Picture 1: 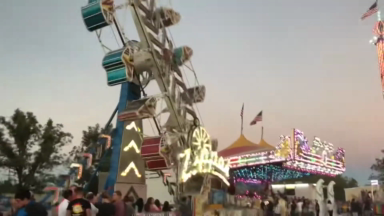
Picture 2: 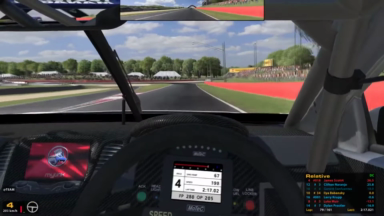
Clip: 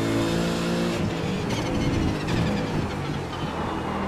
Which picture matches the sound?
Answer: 2